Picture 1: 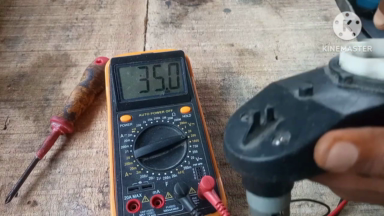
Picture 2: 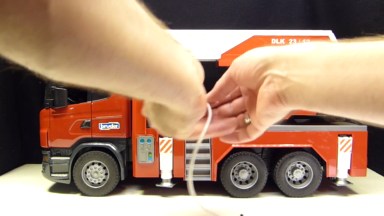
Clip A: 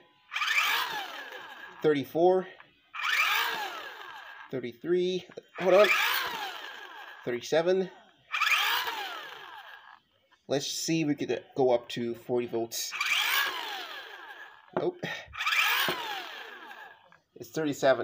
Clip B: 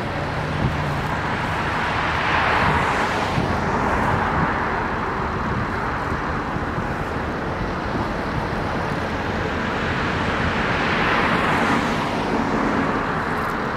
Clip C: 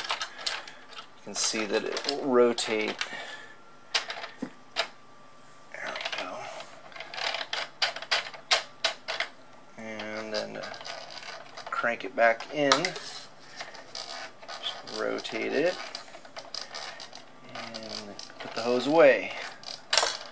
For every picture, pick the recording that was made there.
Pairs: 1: A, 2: C